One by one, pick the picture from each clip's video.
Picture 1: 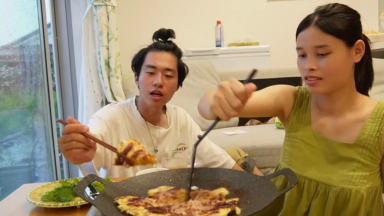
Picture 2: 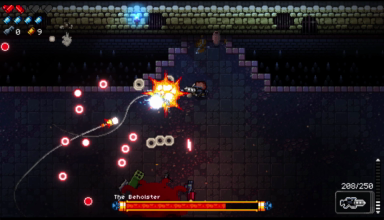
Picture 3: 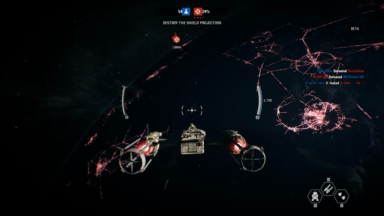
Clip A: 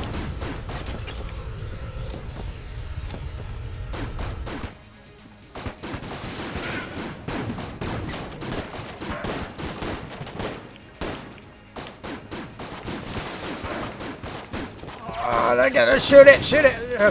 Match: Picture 2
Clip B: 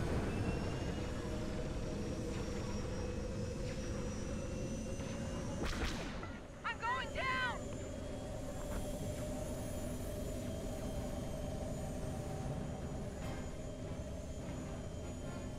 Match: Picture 3